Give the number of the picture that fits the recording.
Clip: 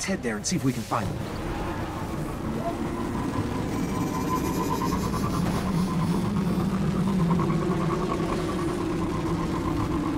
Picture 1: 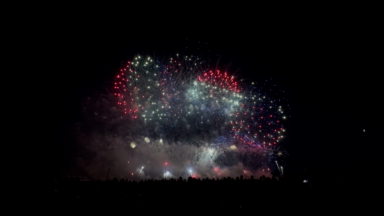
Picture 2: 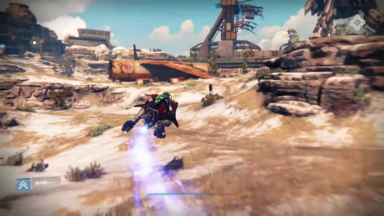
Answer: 2